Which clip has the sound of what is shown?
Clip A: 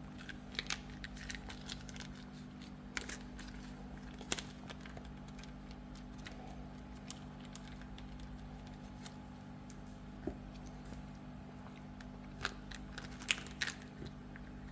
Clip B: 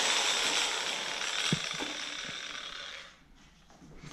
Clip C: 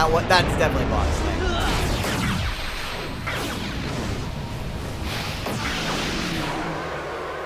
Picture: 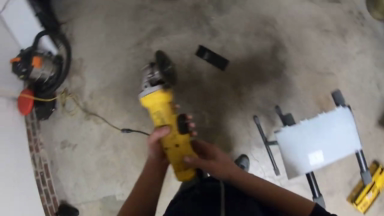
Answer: B